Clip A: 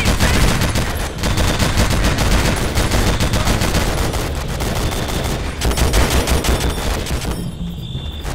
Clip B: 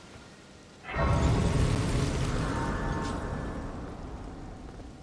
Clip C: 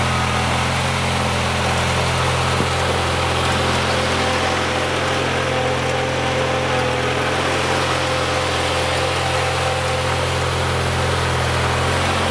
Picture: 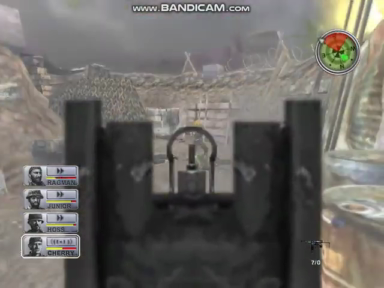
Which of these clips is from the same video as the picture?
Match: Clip A